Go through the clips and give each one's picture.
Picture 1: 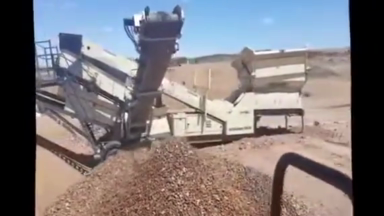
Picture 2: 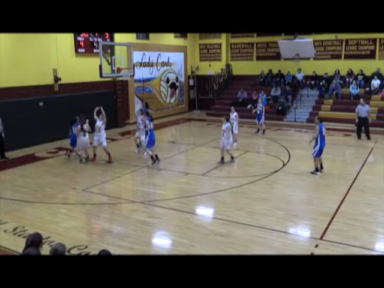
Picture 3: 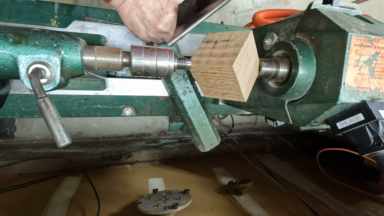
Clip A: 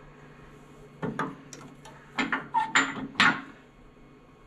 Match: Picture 3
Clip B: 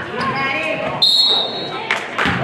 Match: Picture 2